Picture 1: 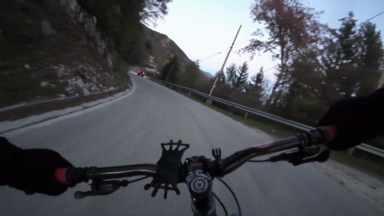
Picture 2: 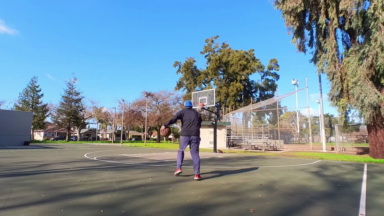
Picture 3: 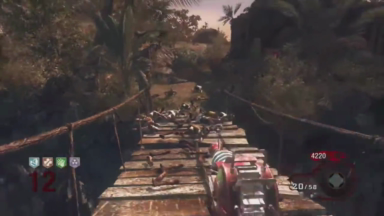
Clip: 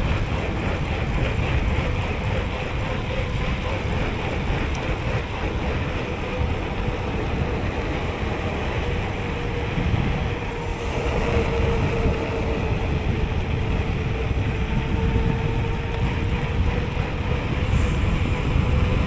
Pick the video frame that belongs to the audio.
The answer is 1